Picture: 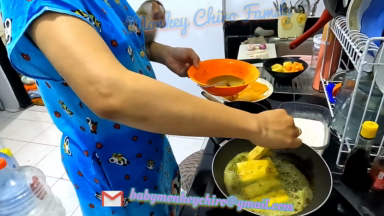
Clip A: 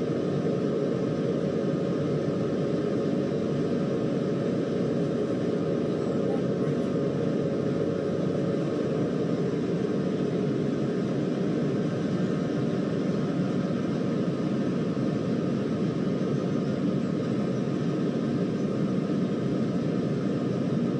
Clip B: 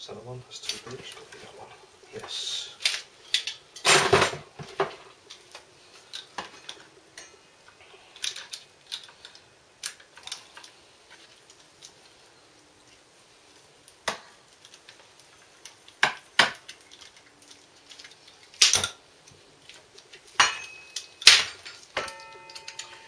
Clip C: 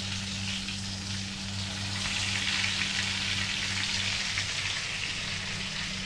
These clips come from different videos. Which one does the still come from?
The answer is C